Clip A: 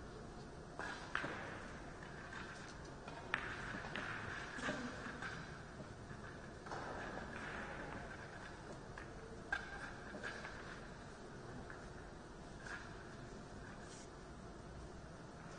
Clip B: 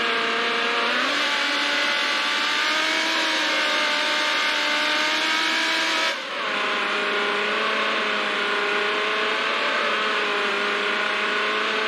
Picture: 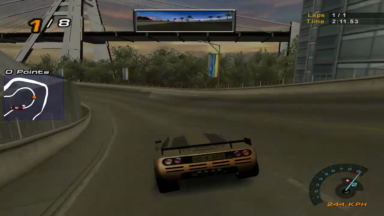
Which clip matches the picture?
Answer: B